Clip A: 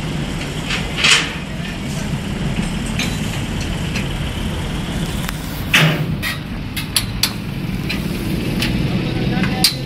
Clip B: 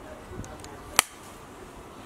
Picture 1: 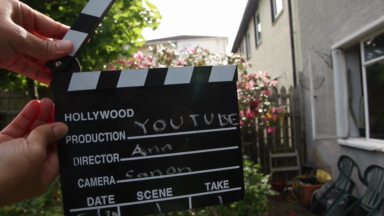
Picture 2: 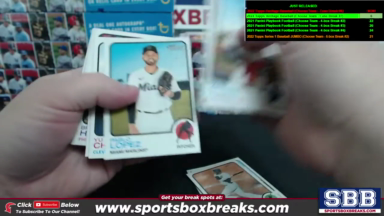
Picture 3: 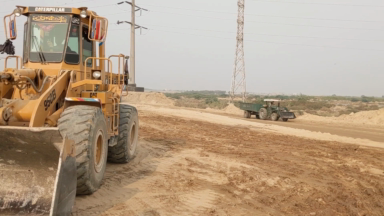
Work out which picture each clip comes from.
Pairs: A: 3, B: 1